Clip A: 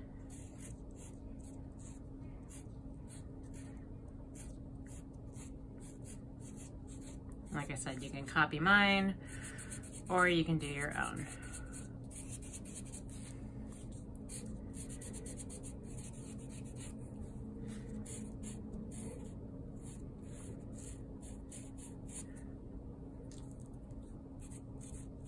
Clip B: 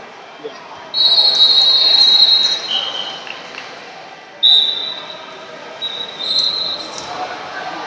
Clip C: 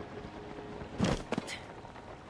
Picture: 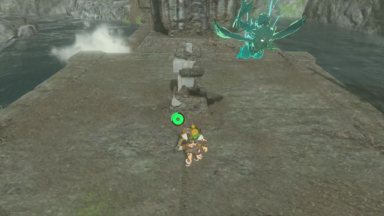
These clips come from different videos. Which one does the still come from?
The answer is C